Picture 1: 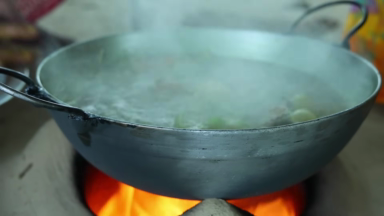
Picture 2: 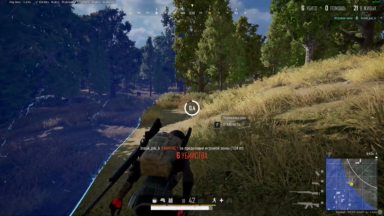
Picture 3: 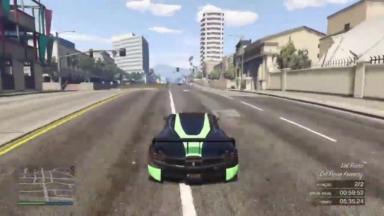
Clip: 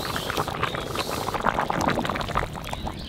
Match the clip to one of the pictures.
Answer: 1